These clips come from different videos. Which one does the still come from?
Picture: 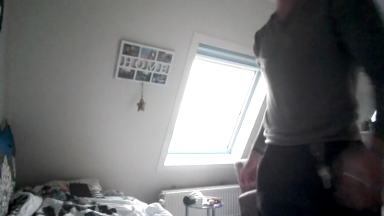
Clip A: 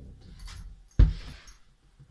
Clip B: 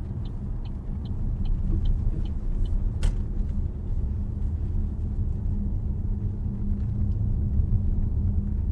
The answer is A